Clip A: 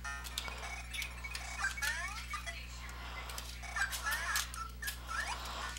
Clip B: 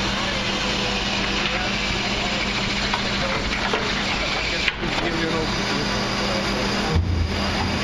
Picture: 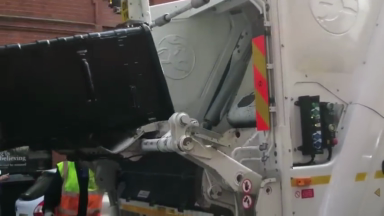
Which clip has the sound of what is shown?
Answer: B